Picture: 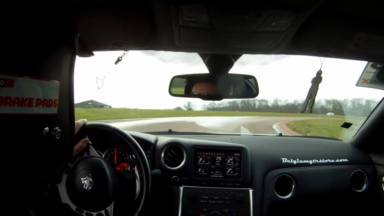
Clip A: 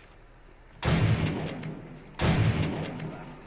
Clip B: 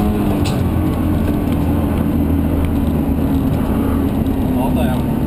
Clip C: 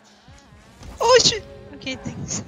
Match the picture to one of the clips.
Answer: B